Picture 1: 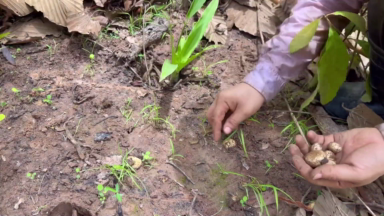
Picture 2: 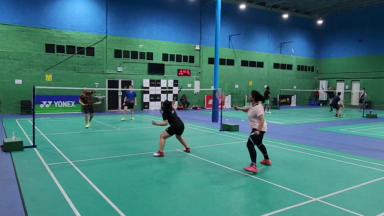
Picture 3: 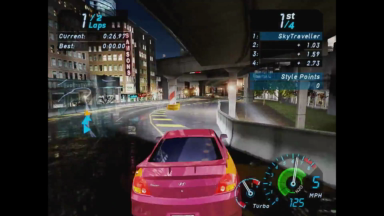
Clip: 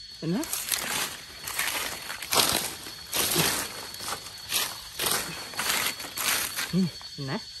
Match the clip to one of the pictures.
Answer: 1